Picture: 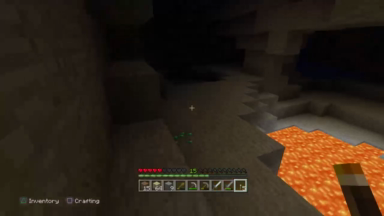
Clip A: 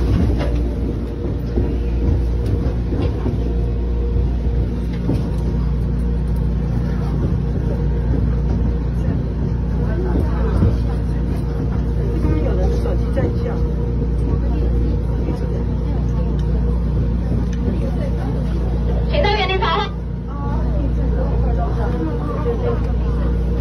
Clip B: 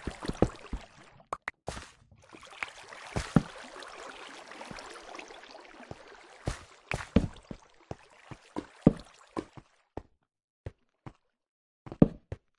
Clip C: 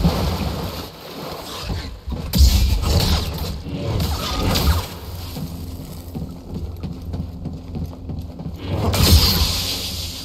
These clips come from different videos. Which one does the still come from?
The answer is B